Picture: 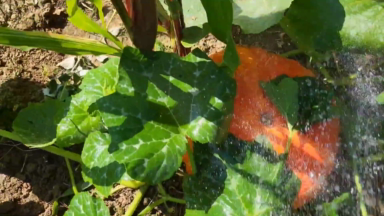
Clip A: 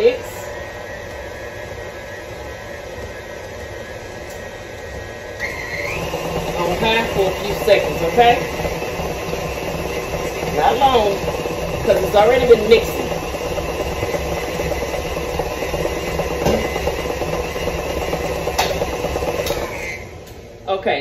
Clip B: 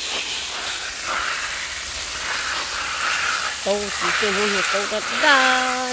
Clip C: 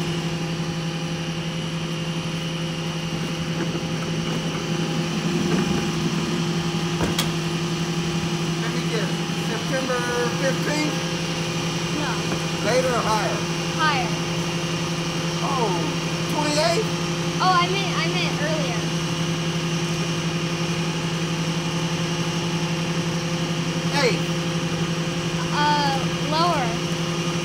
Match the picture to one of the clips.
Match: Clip B